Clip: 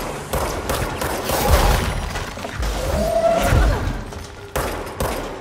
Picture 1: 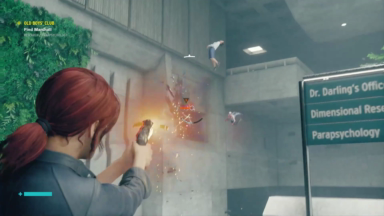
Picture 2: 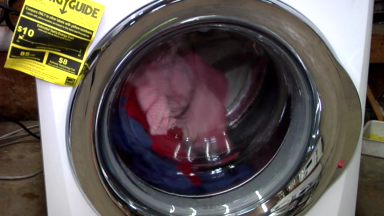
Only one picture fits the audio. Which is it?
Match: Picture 1